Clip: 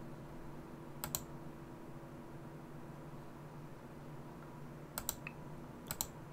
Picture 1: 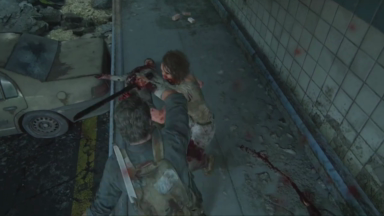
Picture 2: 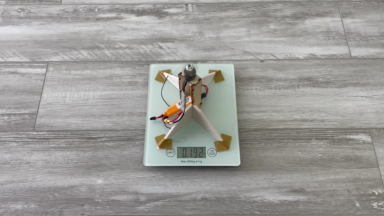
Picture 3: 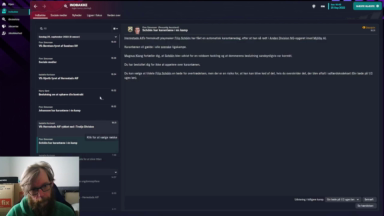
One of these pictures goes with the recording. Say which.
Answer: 3